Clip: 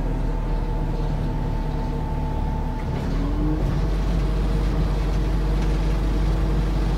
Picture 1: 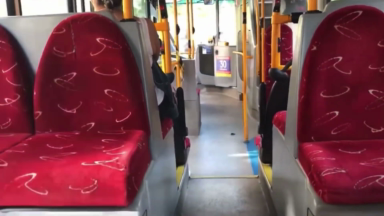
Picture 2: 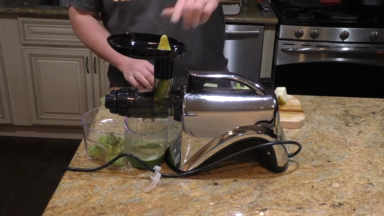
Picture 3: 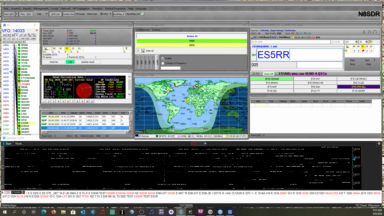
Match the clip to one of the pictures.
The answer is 1